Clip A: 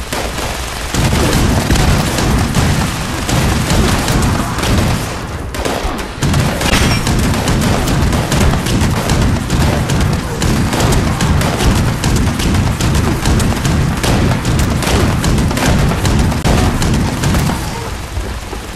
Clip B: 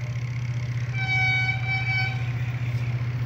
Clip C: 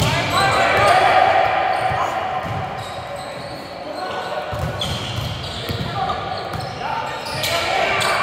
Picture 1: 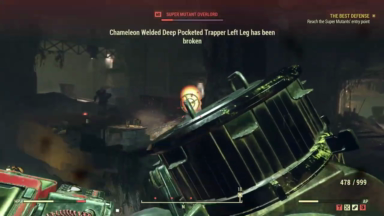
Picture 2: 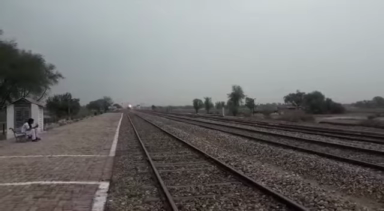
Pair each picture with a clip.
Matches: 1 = A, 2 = B